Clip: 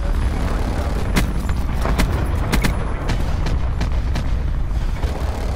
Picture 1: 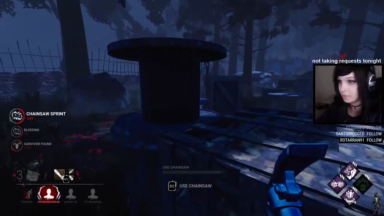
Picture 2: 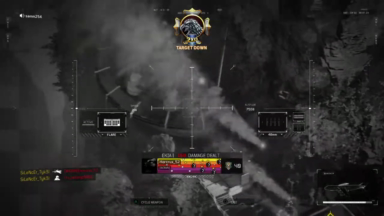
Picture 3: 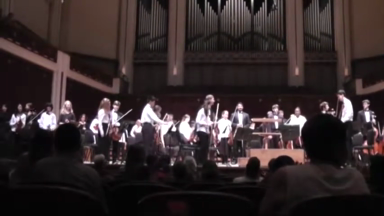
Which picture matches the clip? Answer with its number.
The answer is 2